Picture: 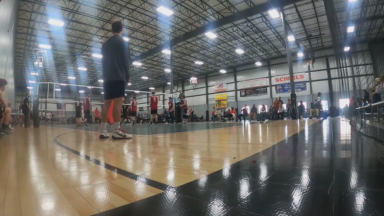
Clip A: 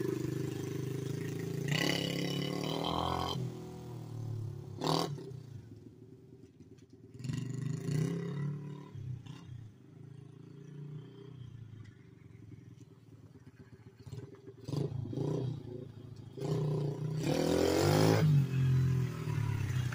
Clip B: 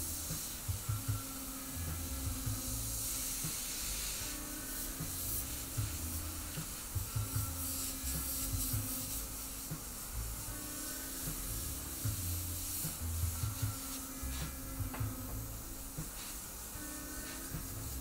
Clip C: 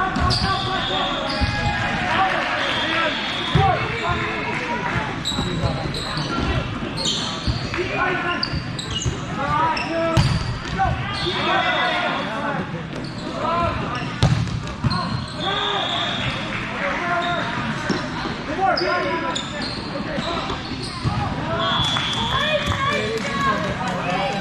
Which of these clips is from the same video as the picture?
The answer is C